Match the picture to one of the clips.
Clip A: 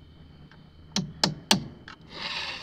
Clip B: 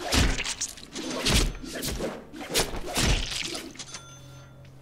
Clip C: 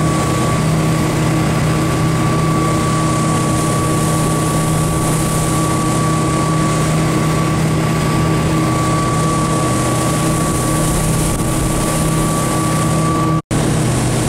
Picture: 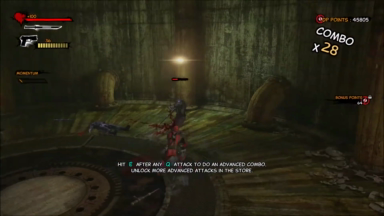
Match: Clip B